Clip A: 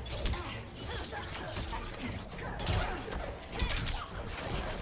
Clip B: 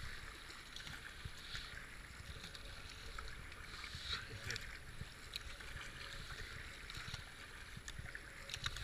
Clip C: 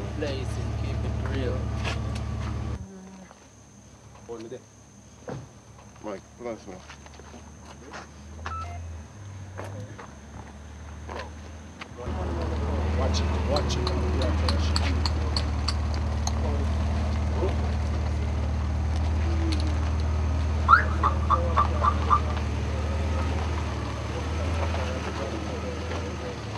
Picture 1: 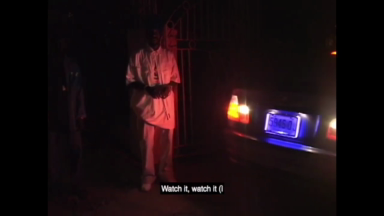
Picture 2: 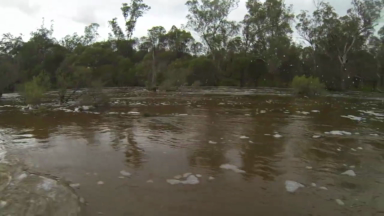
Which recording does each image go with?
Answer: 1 C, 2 B